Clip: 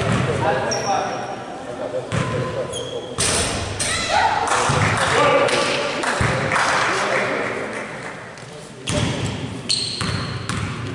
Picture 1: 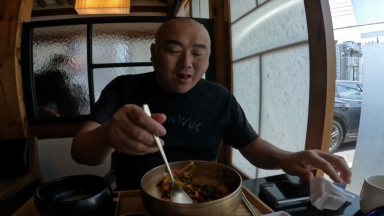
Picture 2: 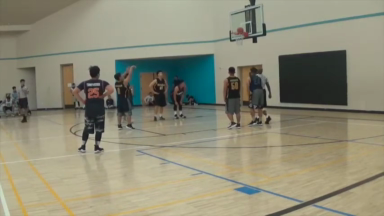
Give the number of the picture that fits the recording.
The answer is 2